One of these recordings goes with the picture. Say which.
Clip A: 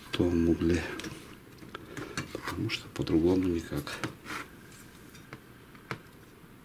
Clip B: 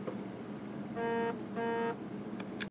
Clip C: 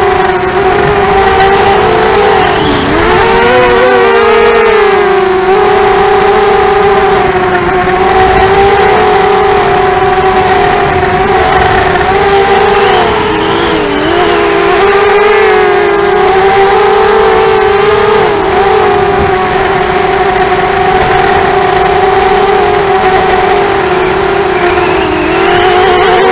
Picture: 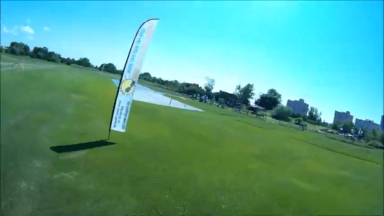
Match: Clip C